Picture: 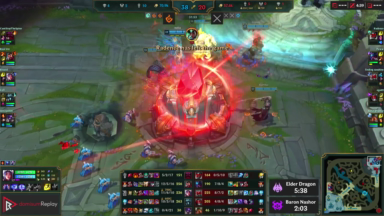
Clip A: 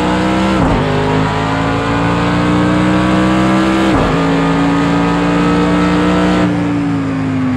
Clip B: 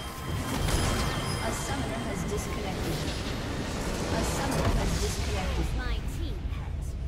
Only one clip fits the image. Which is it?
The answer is B